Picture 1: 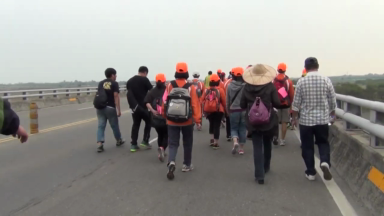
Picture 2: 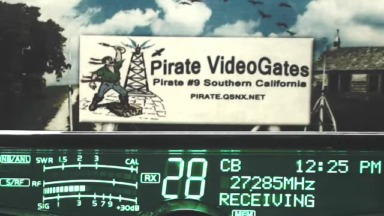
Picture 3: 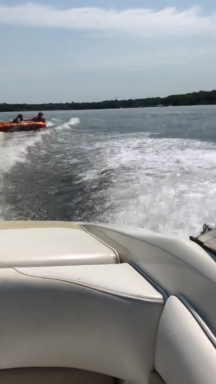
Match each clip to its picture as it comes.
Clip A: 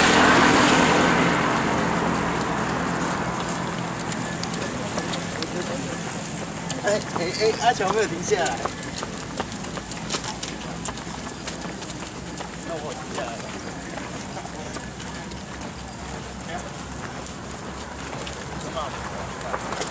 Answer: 1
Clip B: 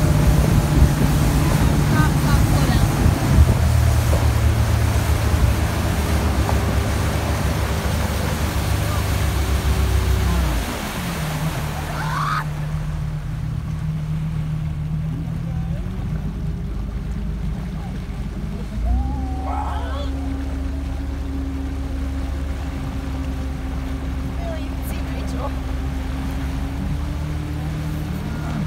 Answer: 3